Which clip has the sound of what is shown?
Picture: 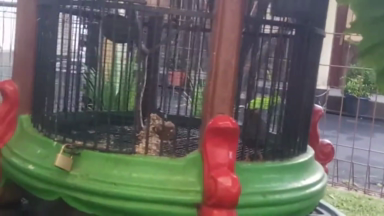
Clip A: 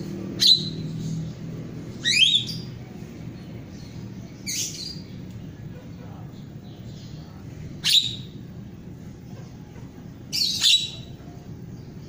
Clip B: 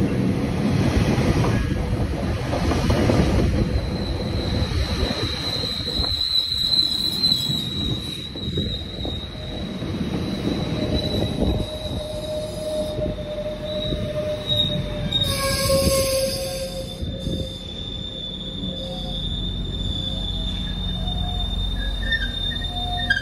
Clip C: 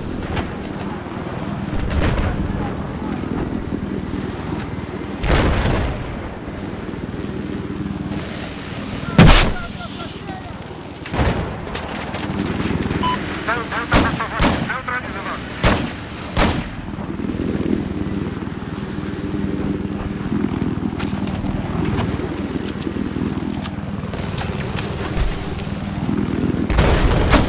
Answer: A